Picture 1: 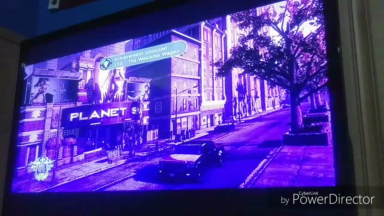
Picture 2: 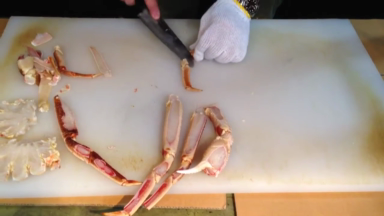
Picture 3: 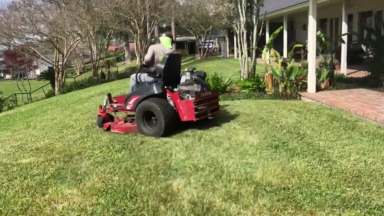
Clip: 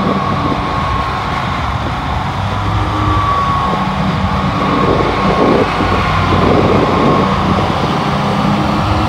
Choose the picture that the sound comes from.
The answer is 3